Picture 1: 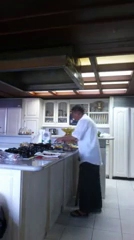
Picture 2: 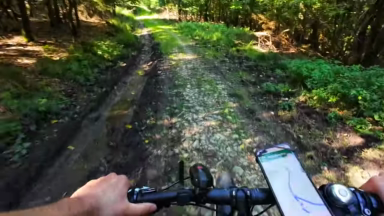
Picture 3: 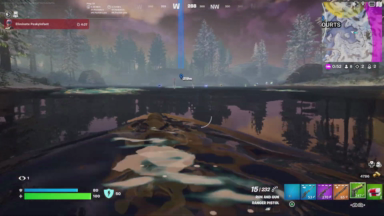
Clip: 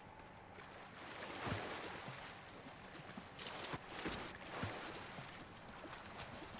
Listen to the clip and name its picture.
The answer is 3